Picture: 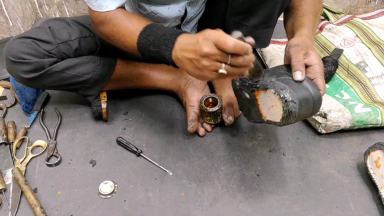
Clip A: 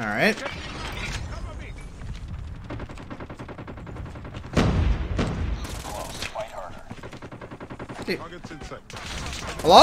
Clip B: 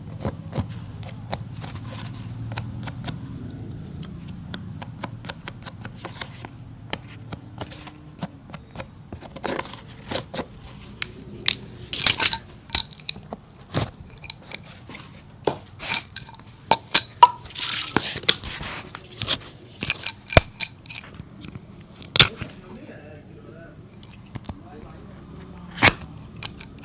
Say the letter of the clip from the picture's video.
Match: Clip B